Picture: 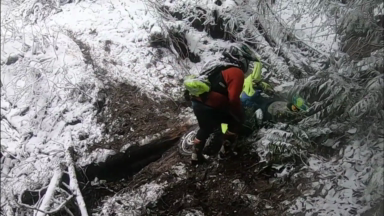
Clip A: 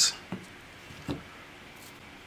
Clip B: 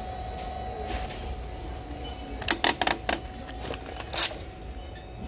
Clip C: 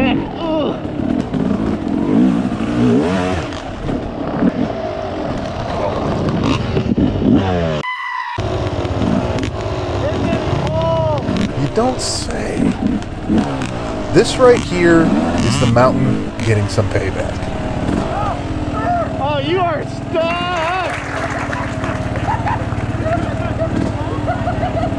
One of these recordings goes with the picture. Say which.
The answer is C